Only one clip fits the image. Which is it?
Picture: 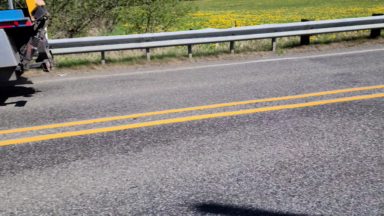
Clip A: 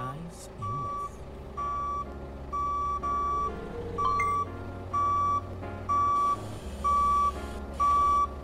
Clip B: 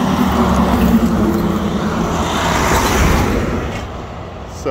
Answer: B